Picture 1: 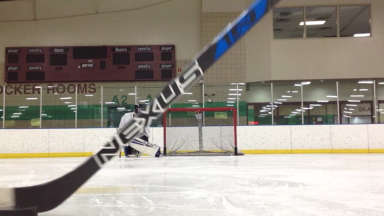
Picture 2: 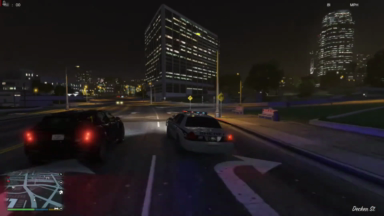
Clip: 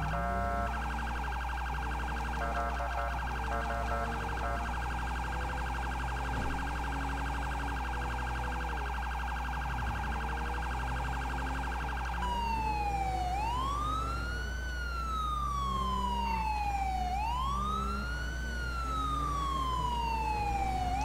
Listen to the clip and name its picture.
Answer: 2